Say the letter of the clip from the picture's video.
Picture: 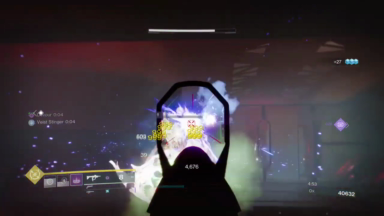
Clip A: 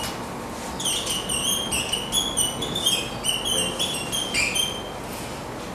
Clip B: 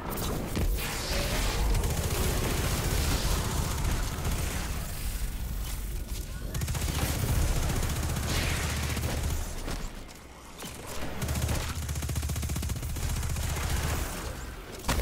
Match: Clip B